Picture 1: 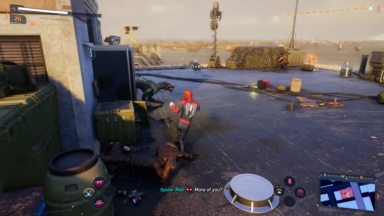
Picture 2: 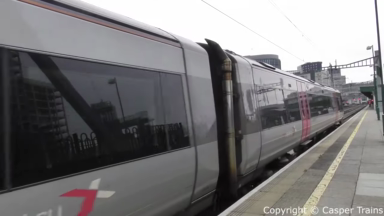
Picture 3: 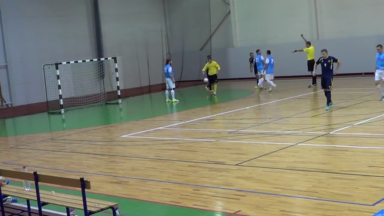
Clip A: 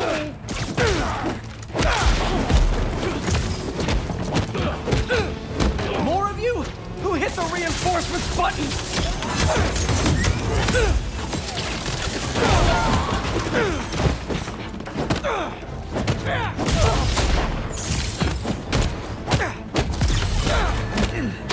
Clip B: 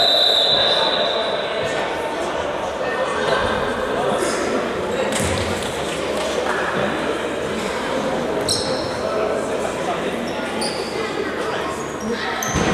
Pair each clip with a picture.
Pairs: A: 1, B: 3